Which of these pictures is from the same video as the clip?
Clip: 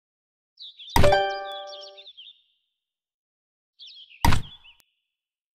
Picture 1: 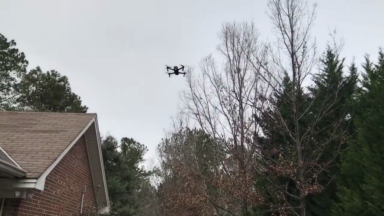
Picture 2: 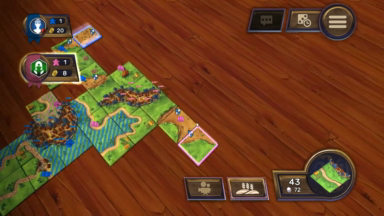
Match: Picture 2